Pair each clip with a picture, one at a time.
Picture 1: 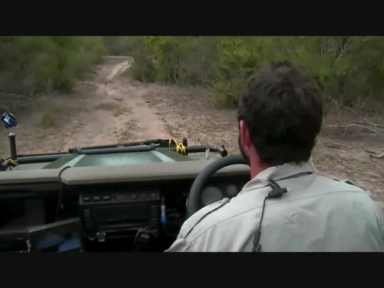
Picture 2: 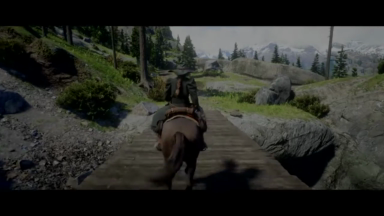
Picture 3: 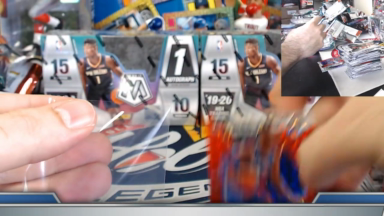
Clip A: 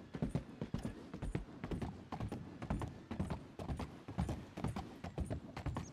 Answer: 2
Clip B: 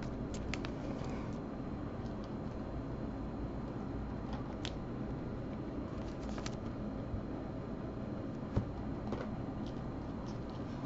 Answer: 3